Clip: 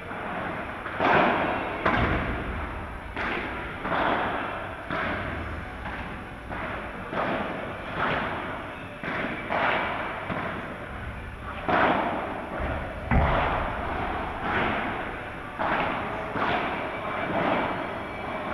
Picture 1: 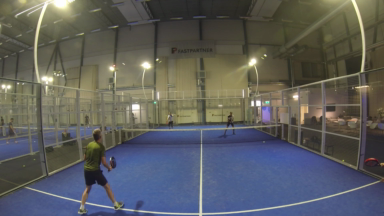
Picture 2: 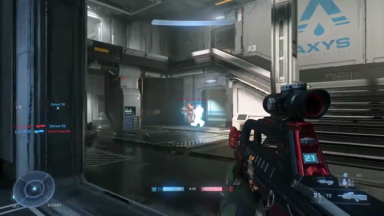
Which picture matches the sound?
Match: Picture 1